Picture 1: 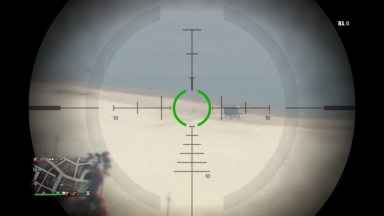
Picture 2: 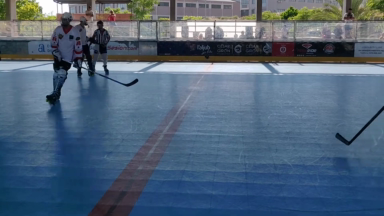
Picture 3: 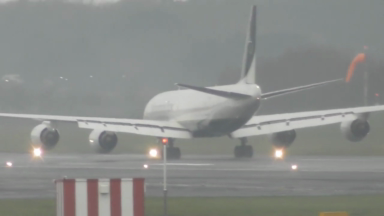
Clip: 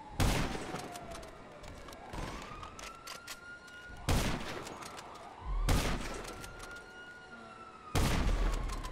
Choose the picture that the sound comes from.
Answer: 1